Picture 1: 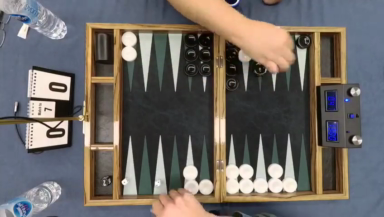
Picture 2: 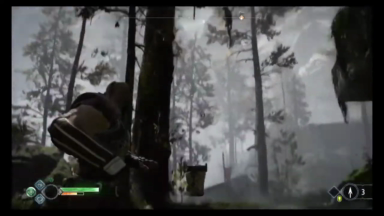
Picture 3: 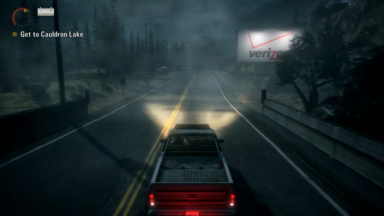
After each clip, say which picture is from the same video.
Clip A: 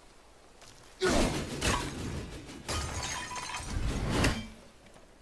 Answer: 2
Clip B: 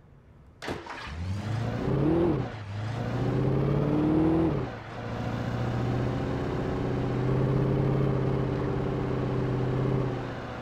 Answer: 3